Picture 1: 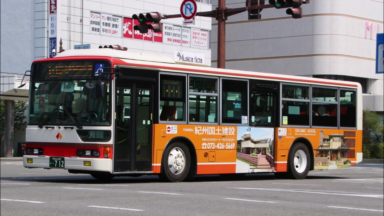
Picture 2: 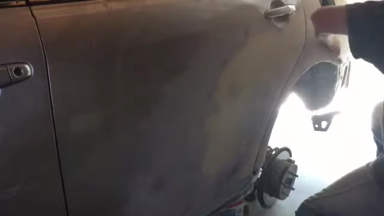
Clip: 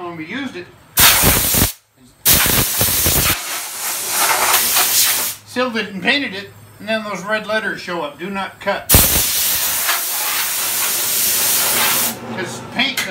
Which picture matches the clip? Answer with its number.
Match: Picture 2